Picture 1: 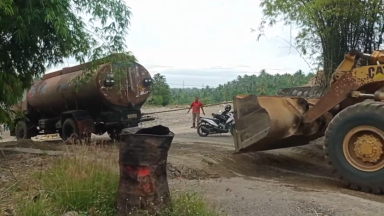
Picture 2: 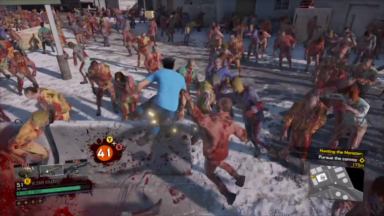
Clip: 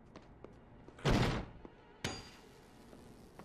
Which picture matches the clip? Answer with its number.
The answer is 2